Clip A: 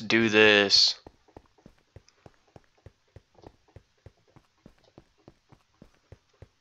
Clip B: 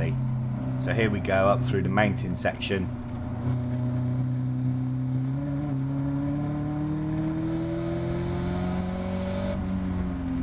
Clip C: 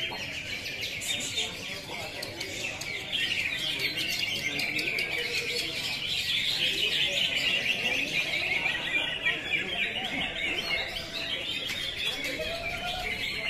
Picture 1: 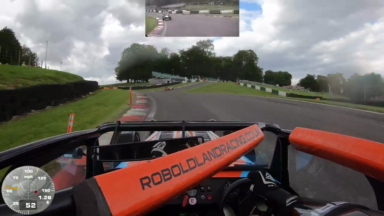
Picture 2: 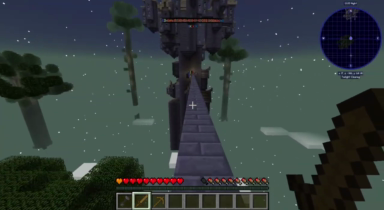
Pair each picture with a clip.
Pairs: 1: B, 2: A